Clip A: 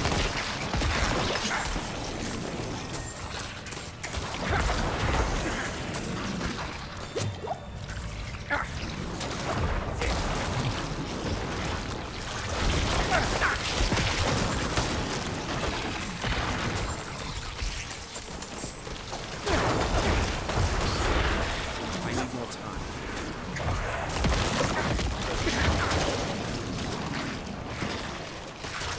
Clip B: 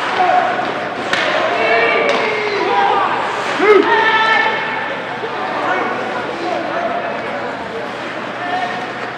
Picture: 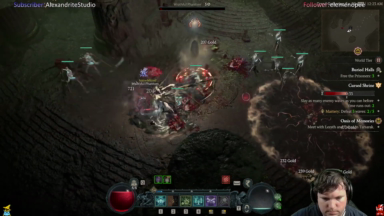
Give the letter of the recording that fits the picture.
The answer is A